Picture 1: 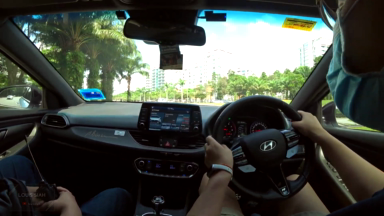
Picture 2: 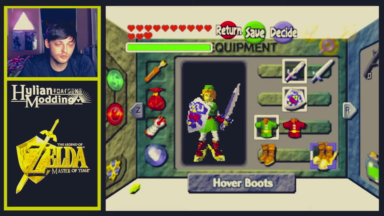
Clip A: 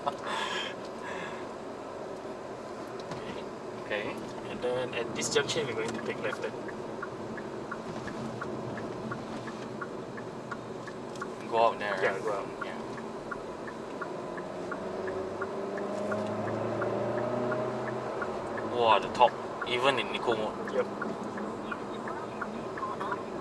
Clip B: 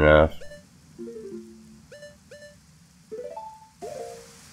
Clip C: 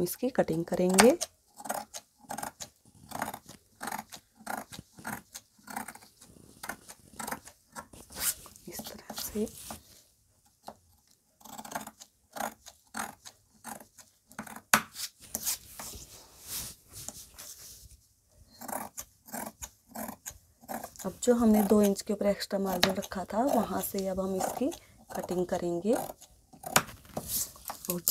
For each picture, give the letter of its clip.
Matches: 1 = A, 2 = B